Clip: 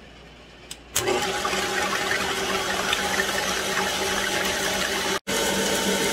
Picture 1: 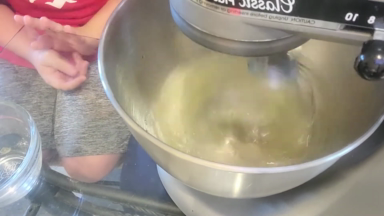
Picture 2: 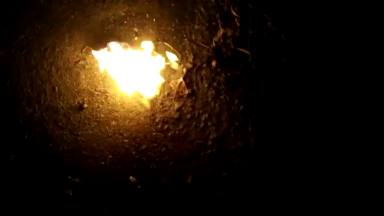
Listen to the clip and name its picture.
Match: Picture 1